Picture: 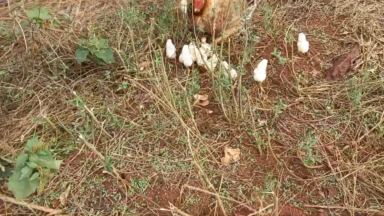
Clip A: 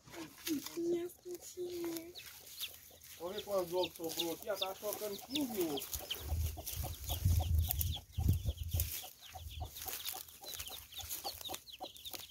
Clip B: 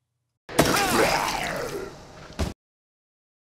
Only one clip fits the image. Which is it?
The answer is A